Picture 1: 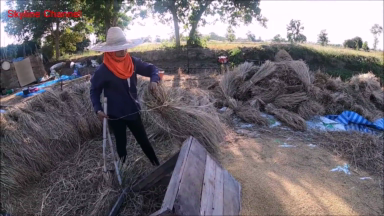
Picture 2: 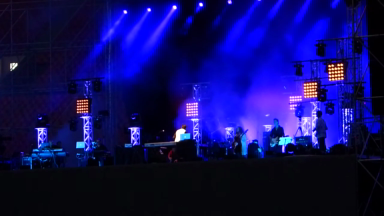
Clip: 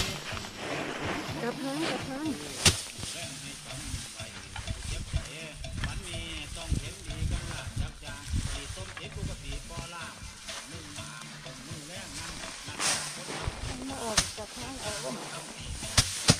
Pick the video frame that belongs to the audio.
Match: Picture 1